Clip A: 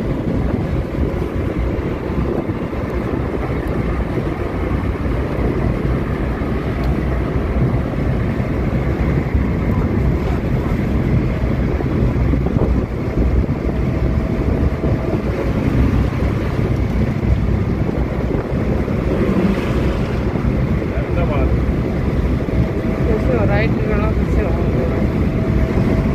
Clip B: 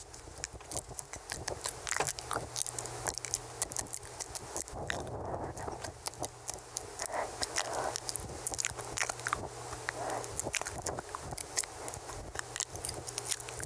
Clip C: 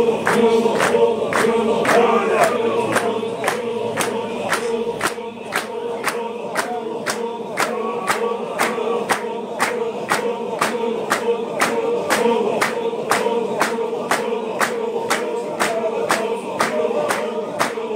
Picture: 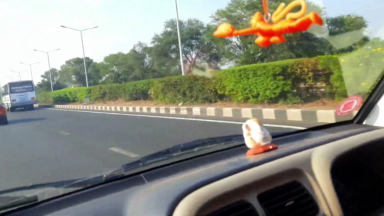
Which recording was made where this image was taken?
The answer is A